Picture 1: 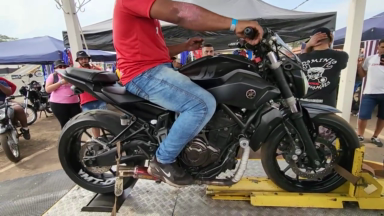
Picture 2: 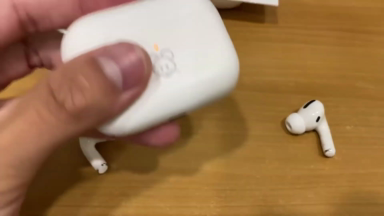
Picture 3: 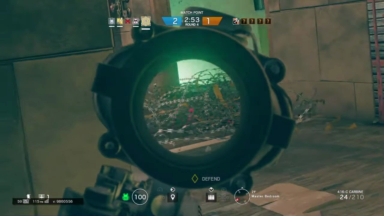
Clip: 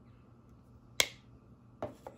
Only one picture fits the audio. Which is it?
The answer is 2